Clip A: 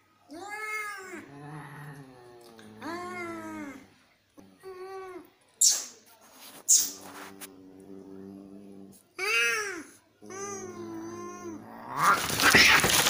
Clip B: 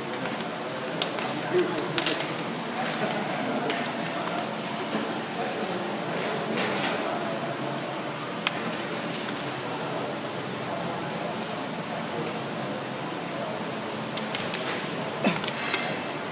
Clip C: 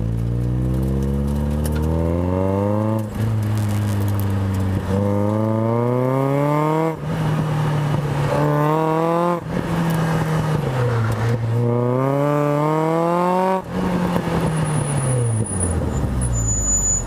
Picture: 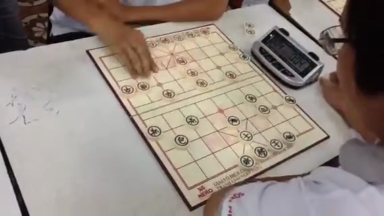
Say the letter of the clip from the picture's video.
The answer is B